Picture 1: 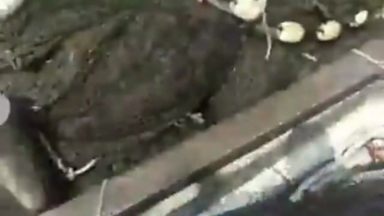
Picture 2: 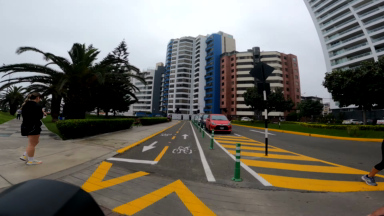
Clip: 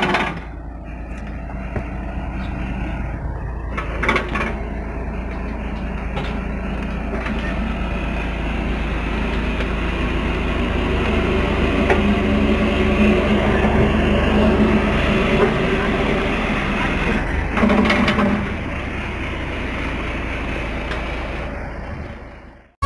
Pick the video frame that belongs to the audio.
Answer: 1